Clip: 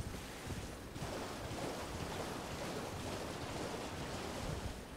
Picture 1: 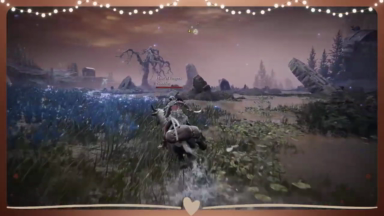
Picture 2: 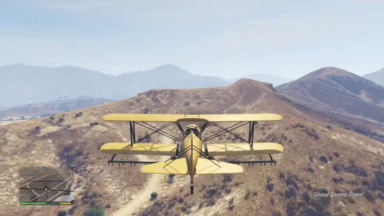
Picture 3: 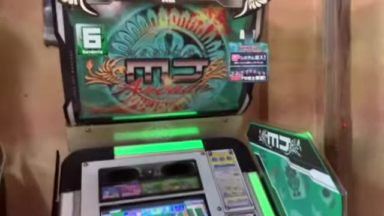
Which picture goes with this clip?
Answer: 1